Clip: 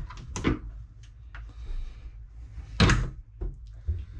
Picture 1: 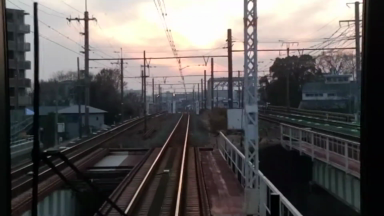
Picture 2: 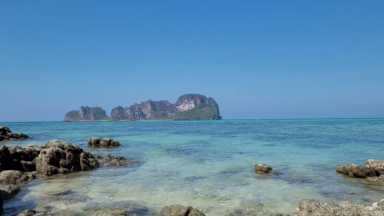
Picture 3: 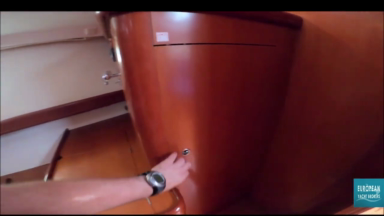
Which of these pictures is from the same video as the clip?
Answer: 3